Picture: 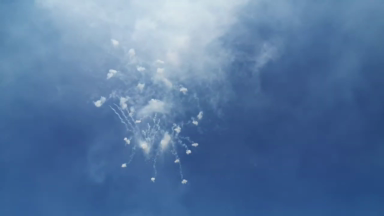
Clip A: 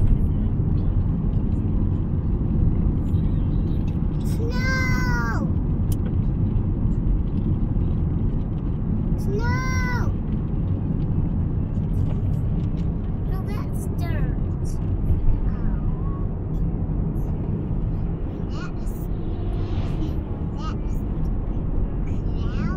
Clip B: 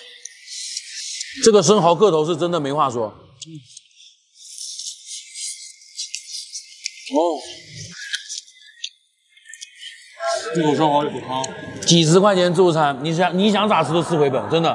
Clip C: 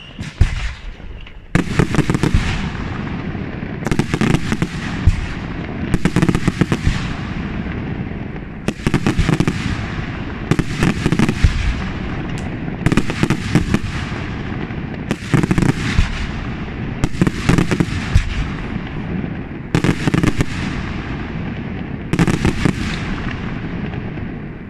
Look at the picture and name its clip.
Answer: C